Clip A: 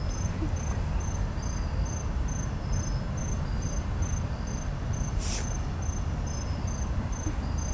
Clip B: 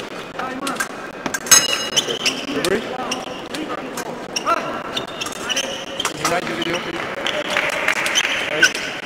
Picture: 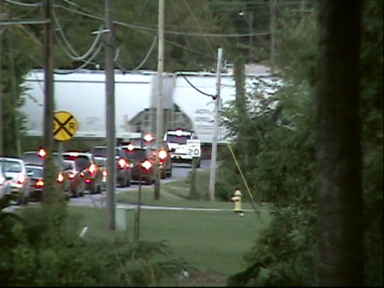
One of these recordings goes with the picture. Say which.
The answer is A